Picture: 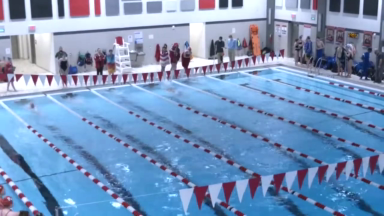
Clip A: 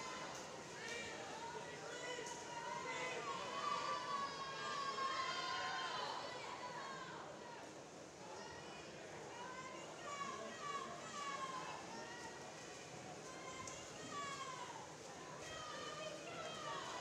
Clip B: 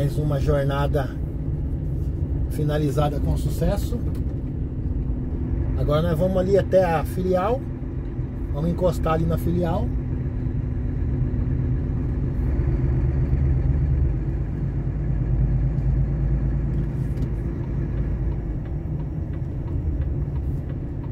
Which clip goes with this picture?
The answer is A